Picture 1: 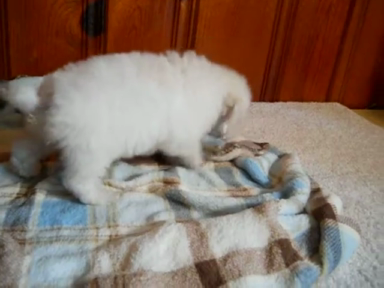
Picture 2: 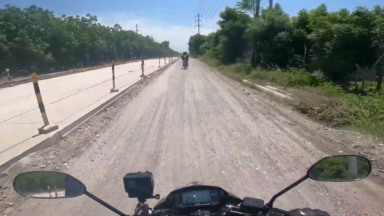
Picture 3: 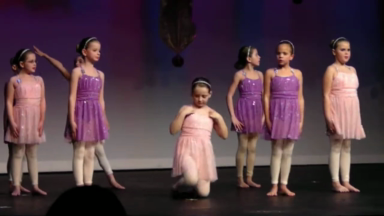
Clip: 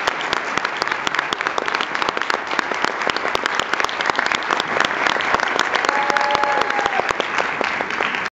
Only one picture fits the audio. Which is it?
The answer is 3